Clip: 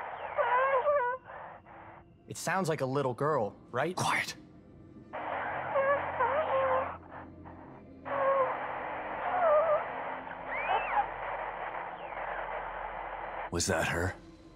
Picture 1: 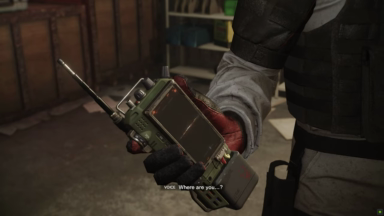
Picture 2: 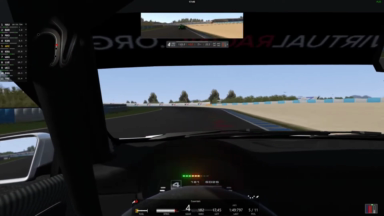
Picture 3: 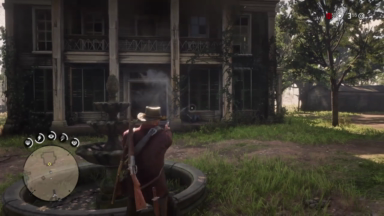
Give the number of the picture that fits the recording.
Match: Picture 1